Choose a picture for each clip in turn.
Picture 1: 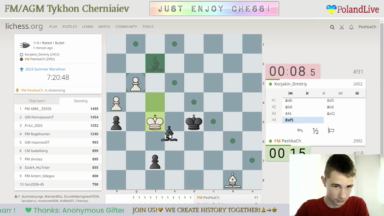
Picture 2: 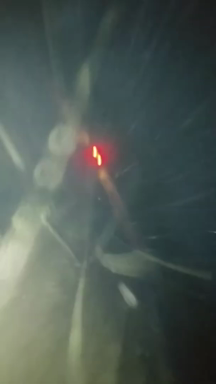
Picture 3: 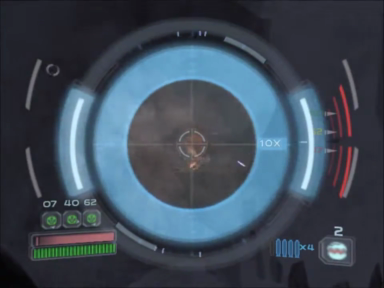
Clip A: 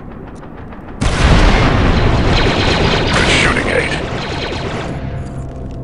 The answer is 3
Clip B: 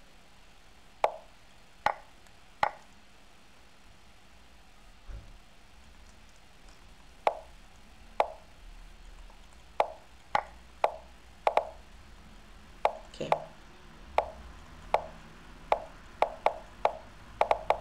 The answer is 1